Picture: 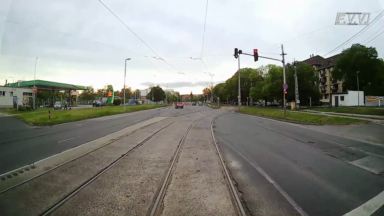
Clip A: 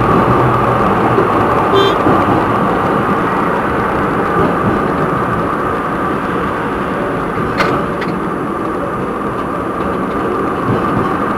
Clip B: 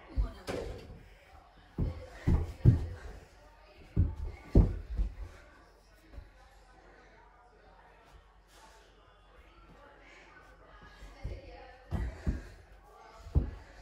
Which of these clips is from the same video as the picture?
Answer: A